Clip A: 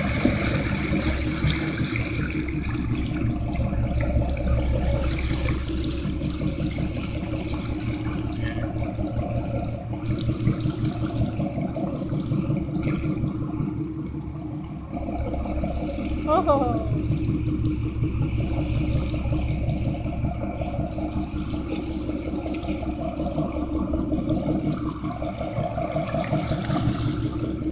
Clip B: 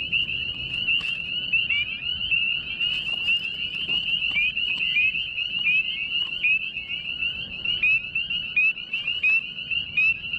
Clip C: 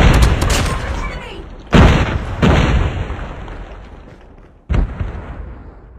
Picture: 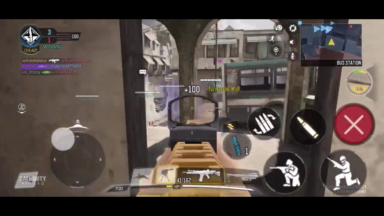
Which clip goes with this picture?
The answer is C